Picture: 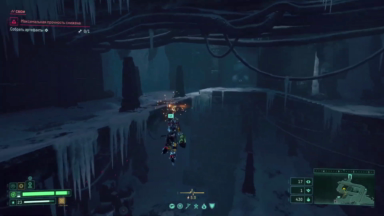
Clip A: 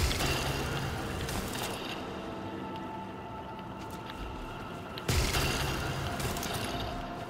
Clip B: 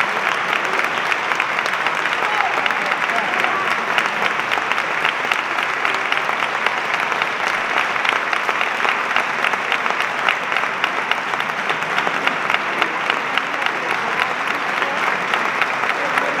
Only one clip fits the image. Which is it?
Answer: A